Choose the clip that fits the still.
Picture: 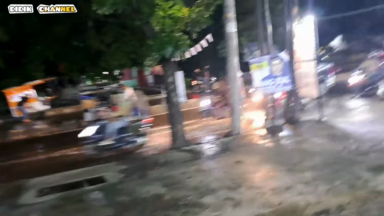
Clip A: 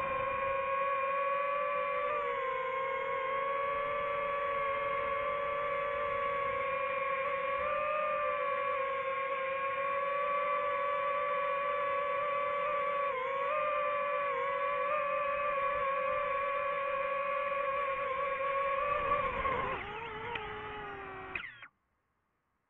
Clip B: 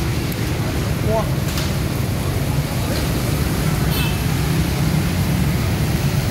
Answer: B